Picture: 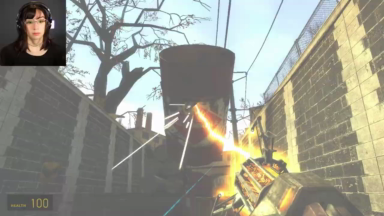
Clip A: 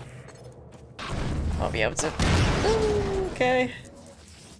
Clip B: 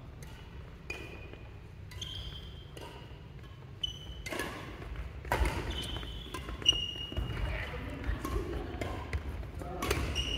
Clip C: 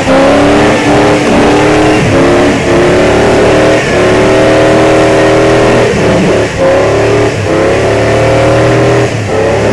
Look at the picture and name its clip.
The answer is A